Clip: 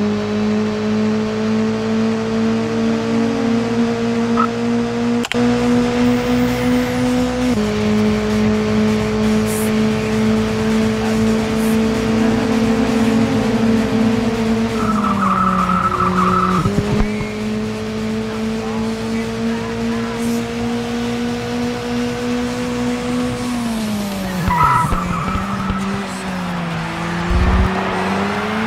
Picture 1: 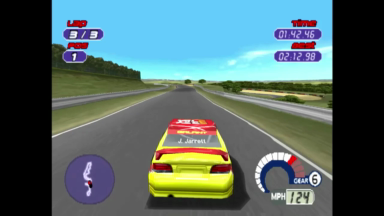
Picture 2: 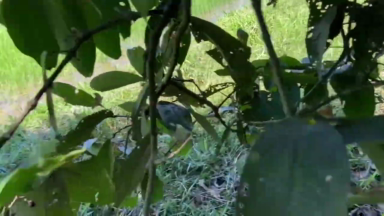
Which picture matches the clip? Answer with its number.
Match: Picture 1